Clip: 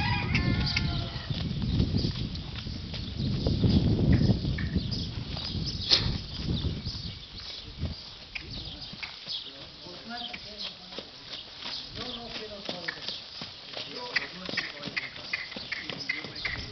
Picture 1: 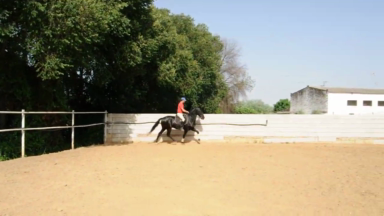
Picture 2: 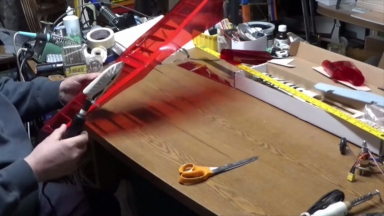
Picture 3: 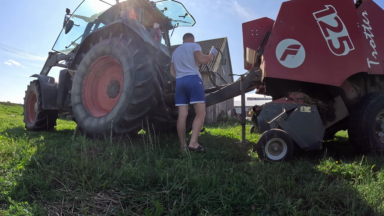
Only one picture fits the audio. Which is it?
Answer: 1